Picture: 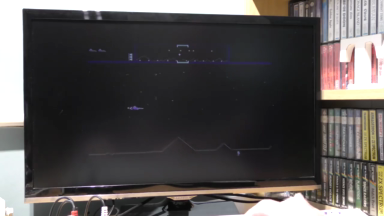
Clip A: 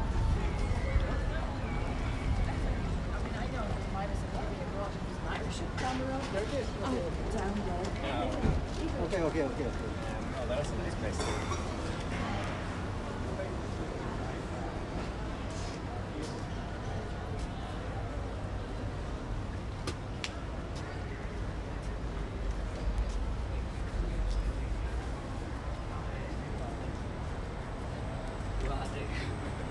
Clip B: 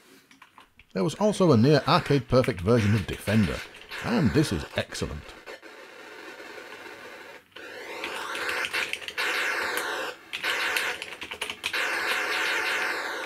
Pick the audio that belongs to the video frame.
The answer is B